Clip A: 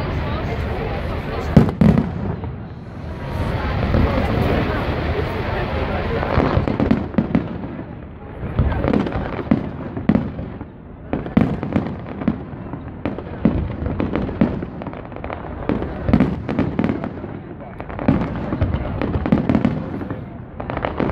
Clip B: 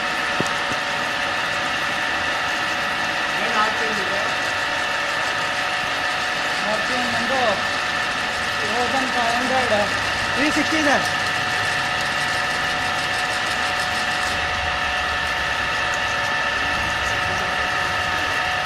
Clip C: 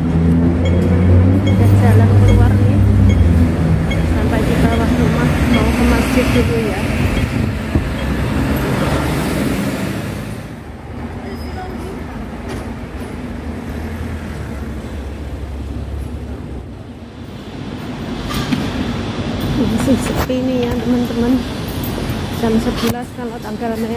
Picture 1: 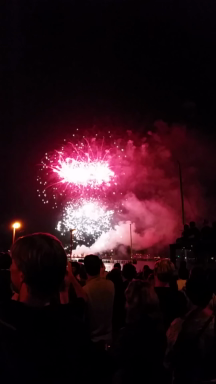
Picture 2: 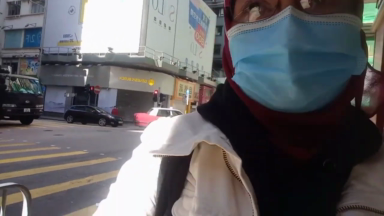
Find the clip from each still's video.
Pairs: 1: A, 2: C